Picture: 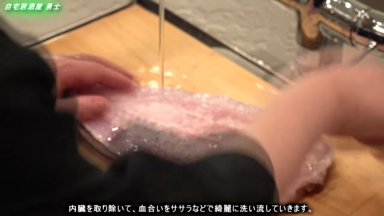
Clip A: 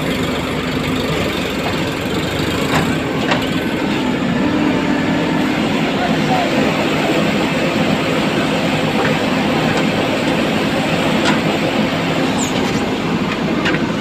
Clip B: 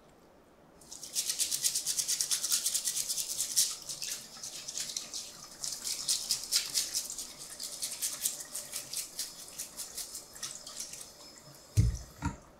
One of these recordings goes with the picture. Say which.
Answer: B